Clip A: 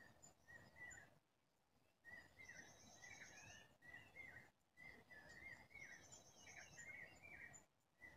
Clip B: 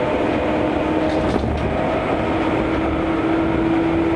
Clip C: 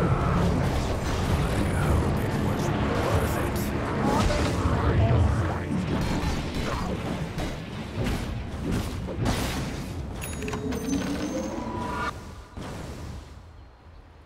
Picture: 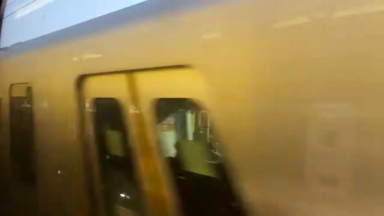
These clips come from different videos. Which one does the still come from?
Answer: B